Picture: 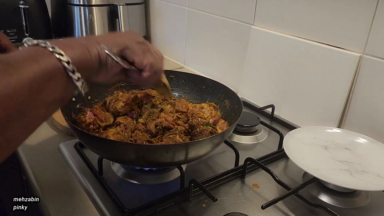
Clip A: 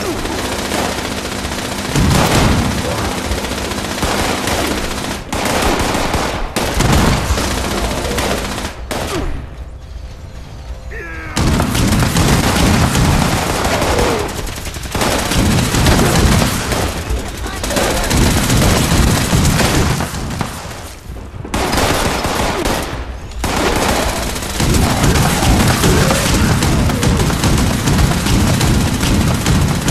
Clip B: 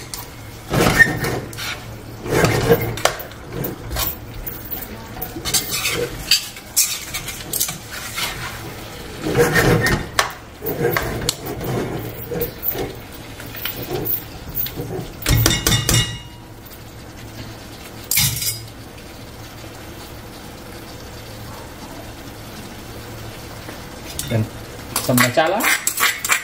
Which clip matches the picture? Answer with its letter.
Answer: B